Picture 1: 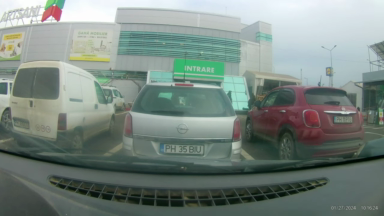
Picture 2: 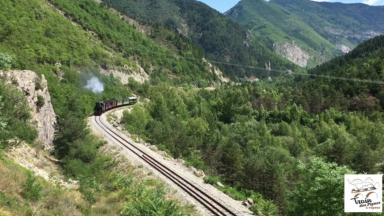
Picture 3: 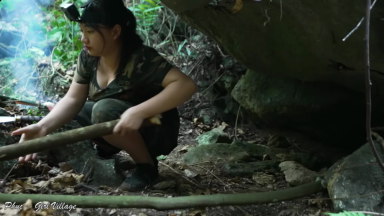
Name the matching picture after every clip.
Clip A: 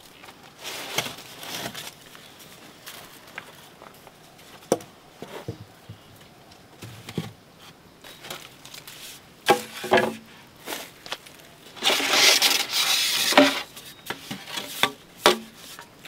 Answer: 3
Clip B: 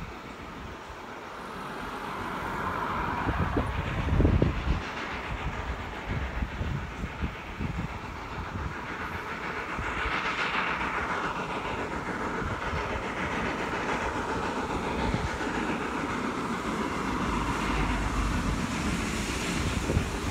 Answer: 2